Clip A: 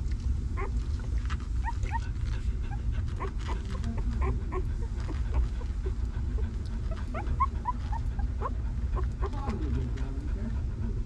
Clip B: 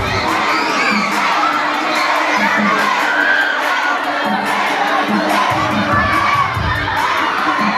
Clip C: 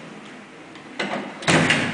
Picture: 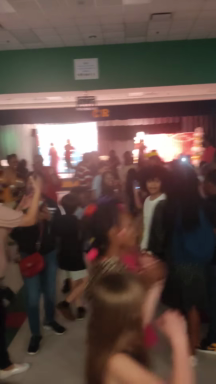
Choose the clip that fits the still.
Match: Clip B